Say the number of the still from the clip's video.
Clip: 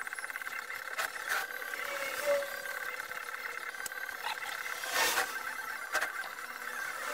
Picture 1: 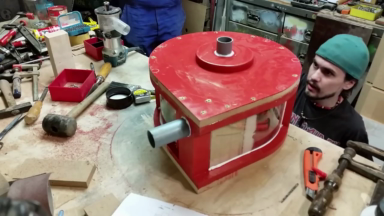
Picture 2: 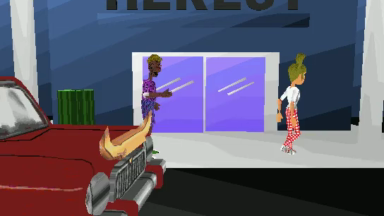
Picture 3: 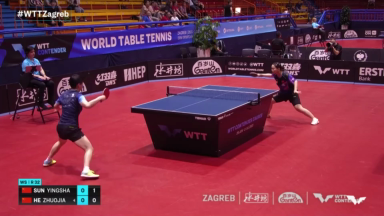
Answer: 1